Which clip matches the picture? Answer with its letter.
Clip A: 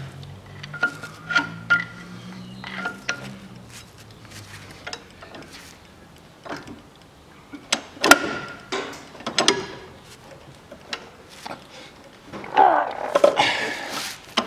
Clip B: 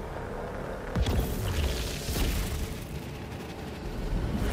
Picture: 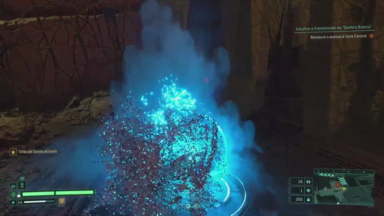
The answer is B